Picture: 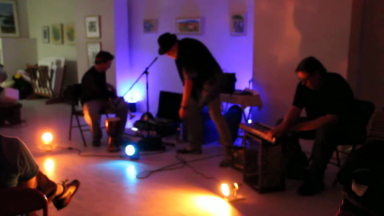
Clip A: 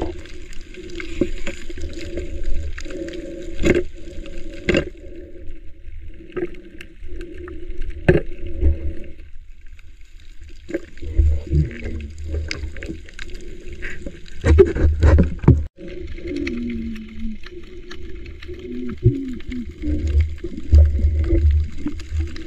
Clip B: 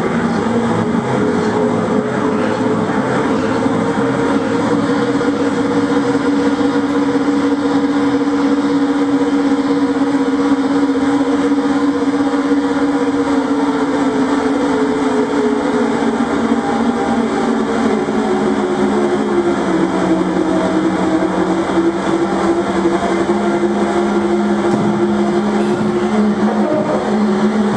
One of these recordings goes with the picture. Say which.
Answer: B